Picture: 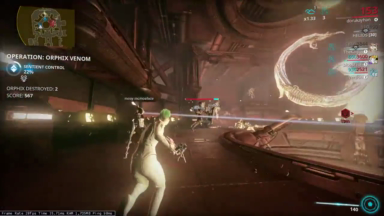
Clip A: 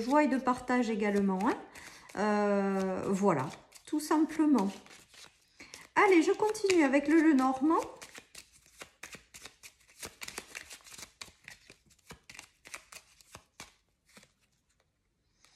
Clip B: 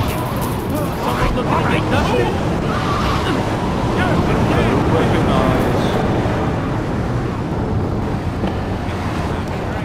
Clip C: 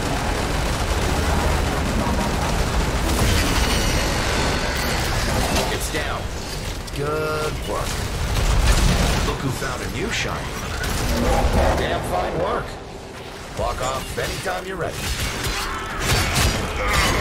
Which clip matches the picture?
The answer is C